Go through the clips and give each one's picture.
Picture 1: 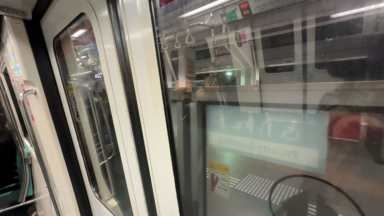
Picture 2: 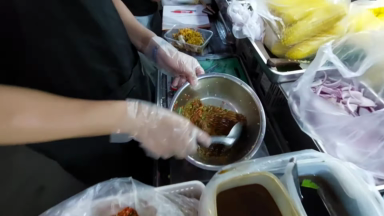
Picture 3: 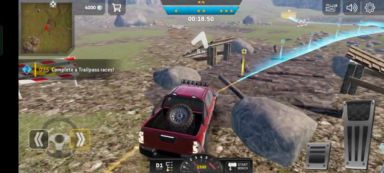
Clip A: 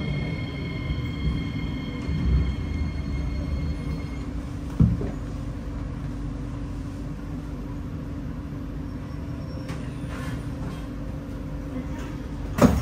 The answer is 1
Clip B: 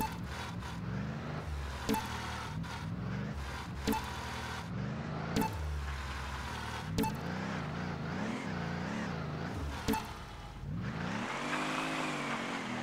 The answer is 3